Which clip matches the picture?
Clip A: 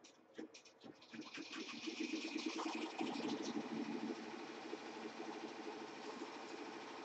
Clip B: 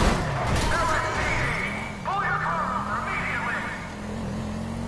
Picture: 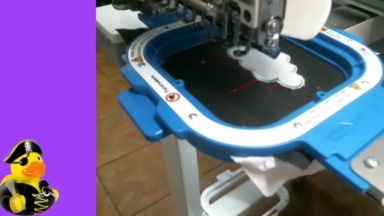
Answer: A